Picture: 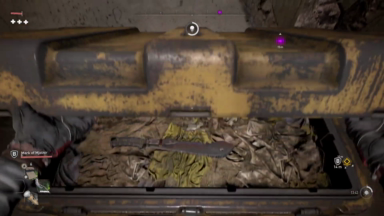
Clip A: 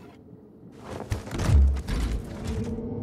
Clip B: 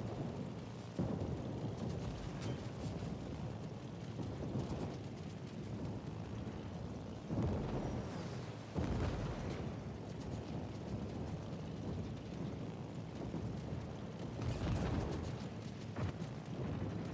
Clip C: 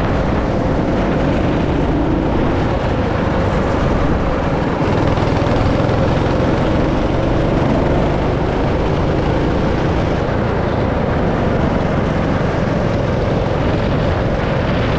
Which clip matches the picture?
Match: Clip A